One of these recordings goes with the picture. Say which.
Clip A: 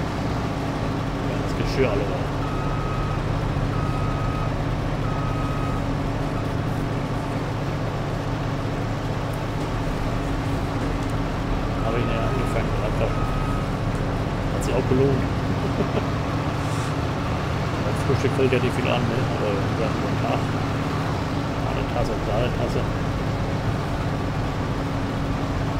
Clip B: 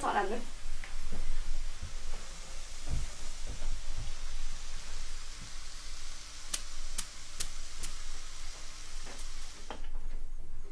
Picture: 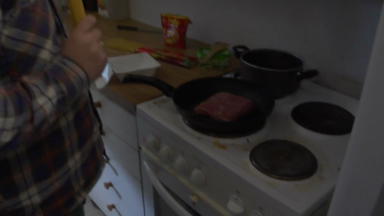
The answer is B